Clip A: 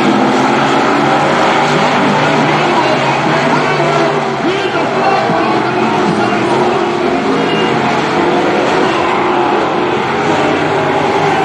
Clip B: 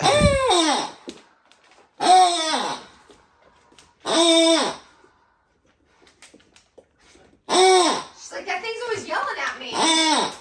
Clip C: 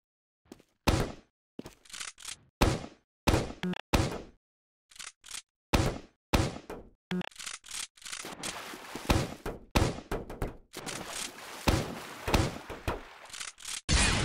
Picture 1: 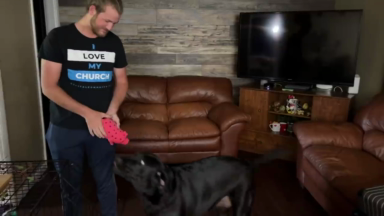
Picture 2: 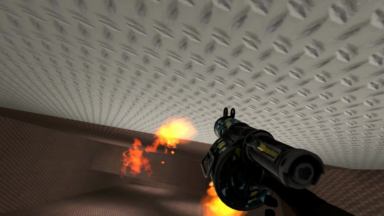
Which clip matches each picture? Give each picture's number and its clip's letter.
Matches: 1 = B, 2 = C